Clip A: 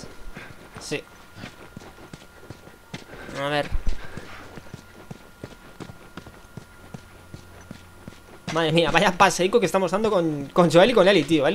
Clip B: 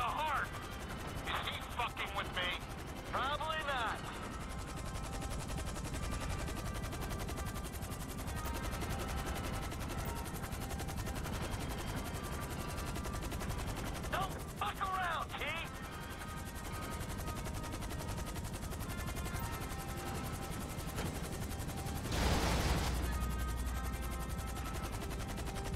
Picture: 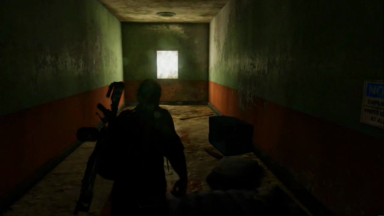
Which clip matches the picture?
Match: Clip A